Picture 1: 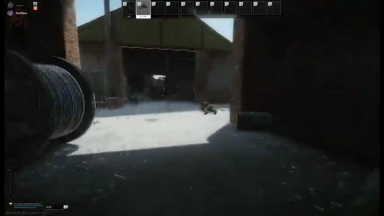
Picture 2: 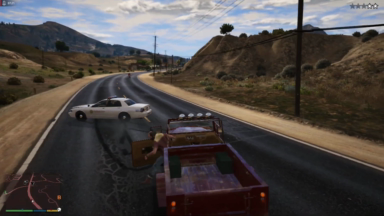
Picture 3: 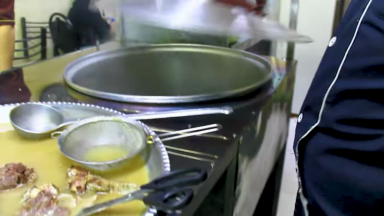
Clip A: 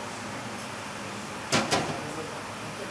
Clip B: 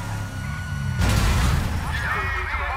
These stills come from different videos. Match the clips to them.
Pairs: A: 3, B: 2